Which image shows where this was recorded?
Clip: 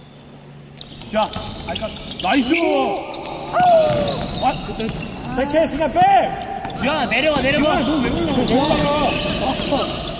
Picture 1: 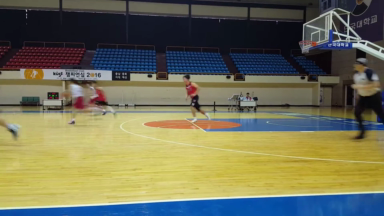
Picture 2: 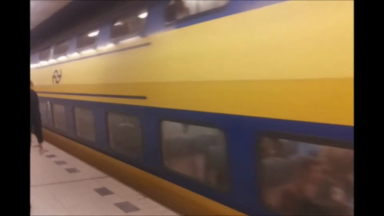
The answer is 1